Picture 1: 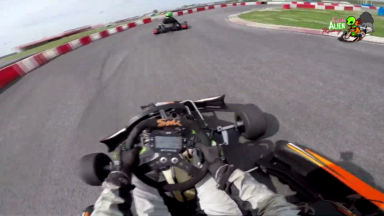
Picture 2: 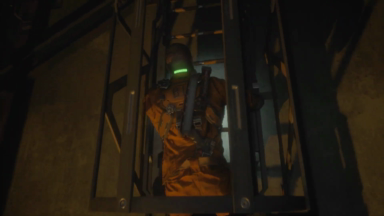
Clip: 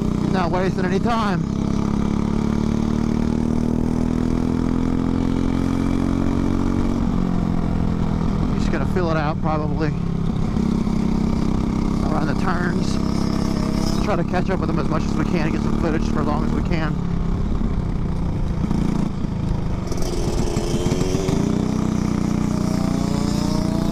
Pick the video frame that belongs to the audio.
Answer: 1